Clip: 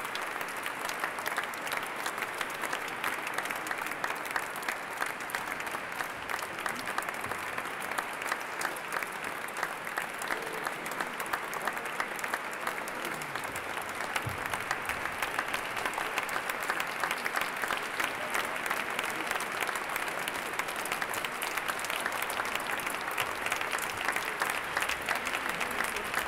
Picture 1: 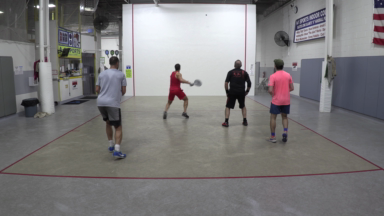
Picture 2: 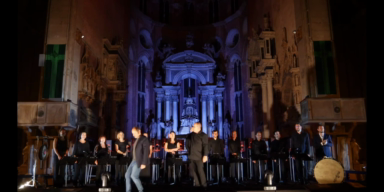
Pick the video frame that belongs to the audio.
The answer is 2